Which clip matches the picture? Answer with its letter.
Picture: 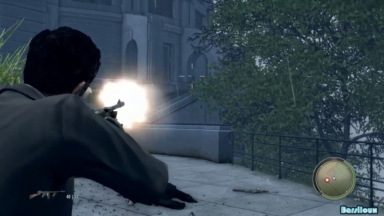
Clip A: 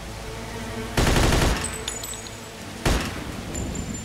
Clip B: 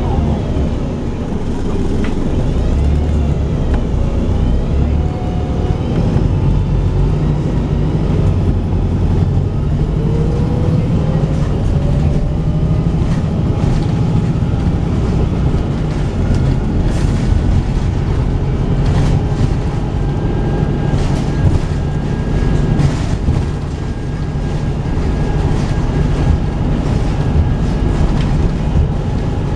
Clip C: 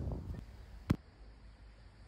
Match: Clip A